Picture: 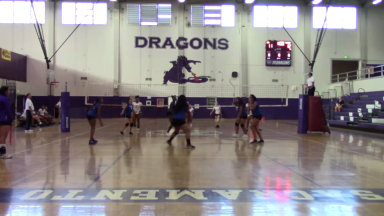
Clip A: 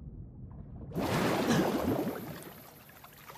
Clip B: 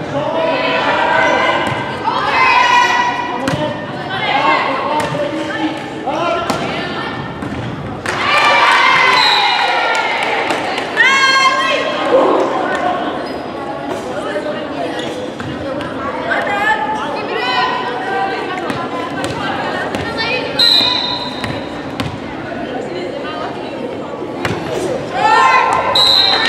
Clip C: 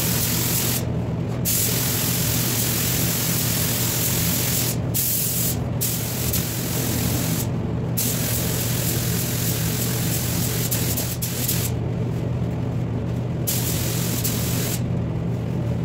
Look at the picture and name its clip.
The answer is B